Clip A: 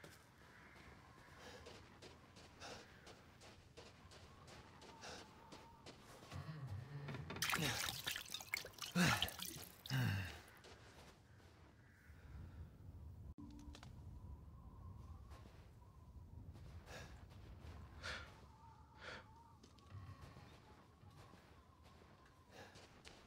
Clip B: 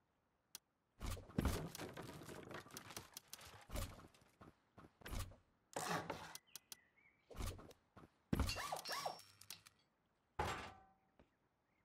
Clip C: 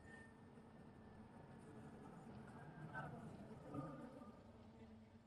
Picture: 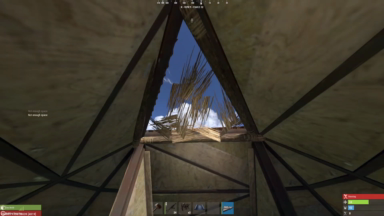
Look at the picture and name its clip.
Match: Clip B